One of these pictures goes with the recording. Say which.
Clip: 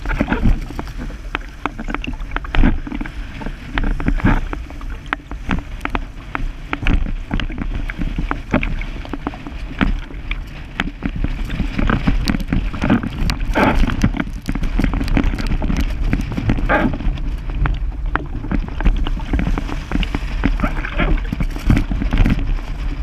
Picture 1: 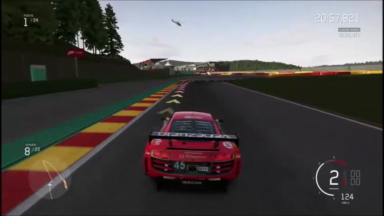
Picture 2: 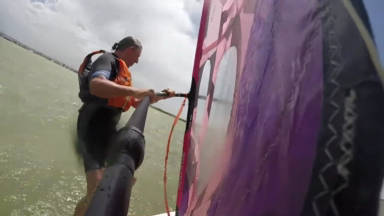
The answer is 2